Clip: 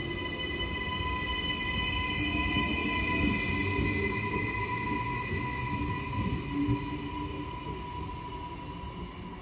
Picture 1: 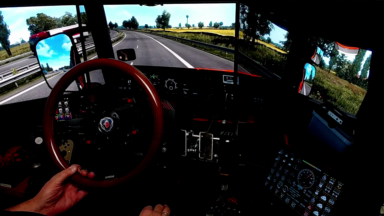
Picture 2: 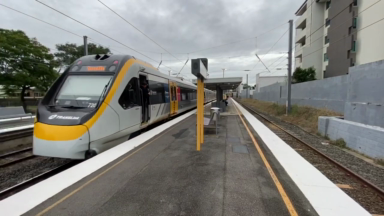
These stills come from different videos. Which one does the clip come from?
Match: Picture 2